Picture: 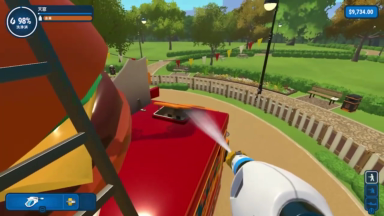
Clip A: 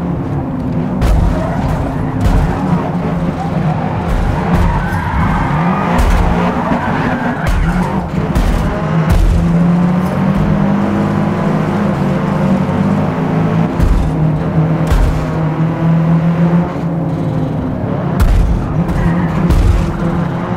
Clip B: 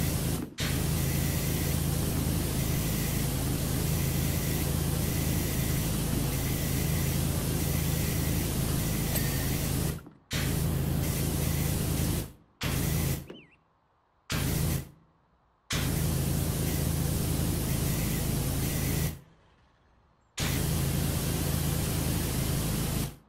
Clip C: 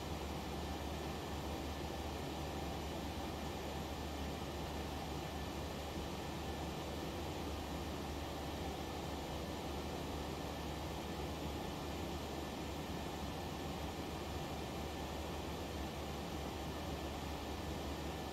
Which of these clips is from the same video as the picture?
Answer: B